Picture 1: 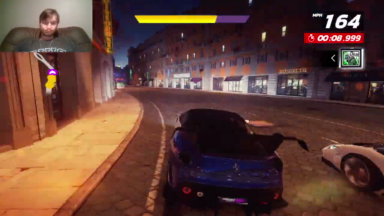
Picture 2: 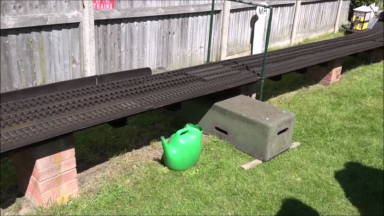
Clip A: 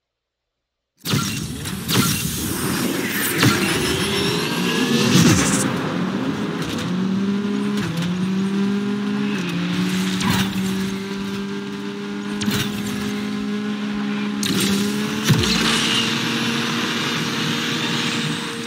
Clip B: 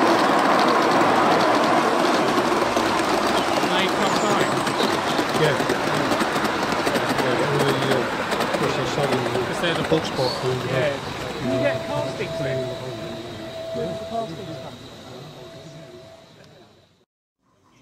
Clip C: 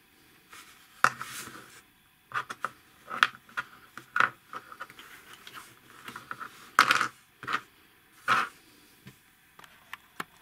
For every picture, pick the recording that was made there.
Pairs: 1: A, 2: B